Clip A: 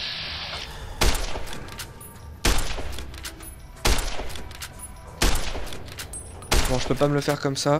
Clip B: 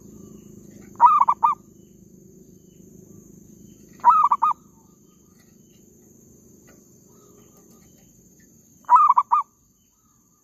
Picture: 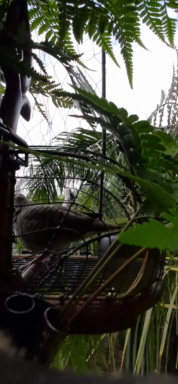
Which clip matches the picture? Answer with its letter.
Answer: B